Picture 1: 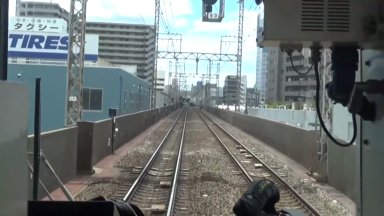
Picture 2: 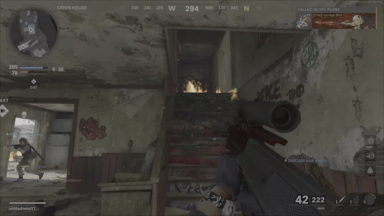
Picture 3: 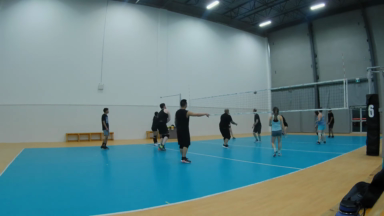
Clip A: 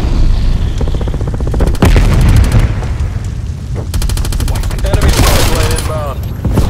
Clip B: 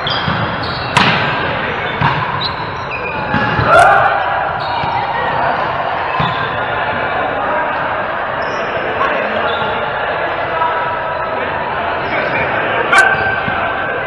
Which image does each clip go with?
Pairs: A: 2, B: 3